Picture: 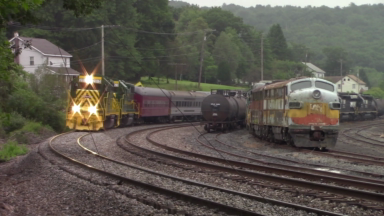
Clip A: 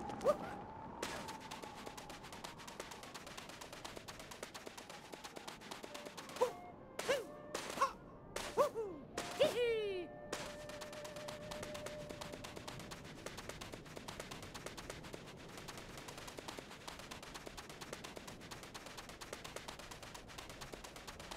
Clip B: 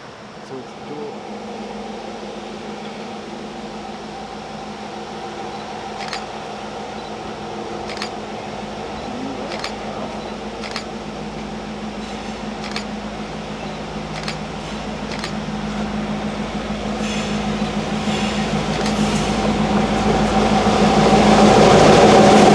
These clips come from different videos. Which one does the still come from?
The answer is B